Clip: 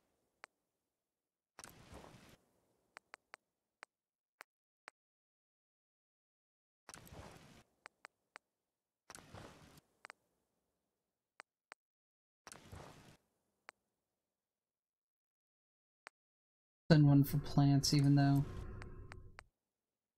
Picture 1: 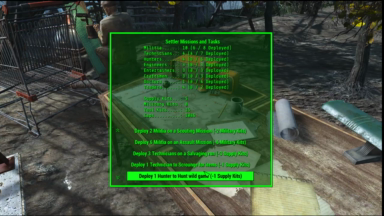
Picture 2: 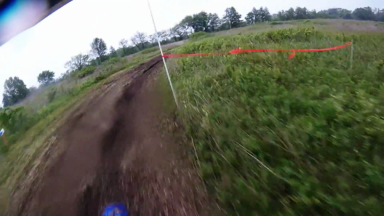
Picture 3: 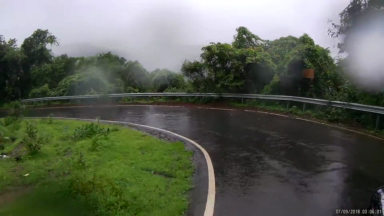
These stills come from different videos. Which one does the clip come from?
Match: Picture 1